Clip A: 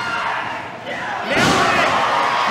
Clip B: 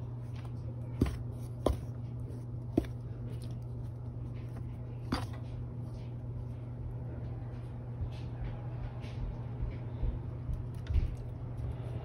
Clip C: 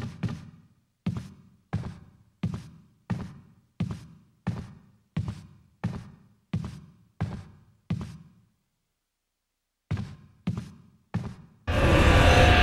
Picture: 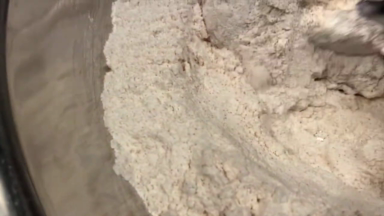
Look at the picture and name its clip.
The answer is B